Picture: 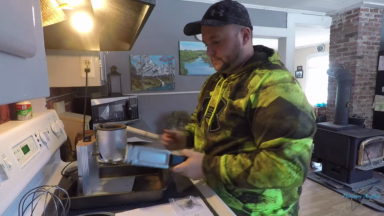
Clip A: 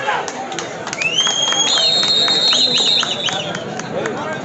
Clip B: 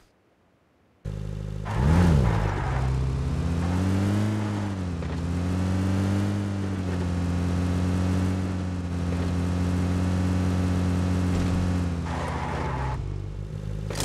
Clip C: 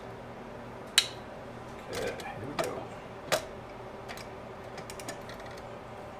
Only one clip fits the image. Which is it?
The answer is C